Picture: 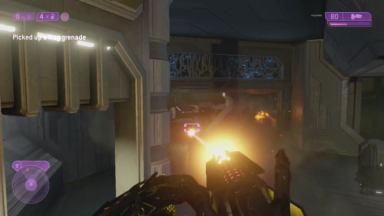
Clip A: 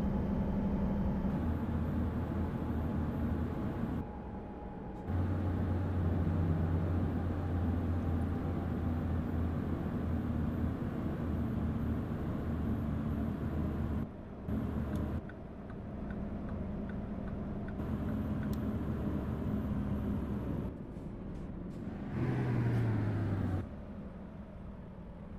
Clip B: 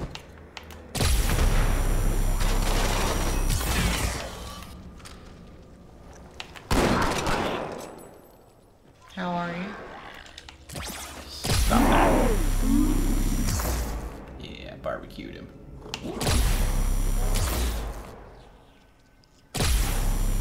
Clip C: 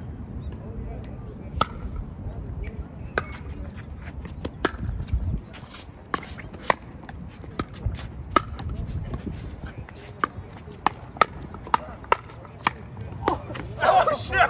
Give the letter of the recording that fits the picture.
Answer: B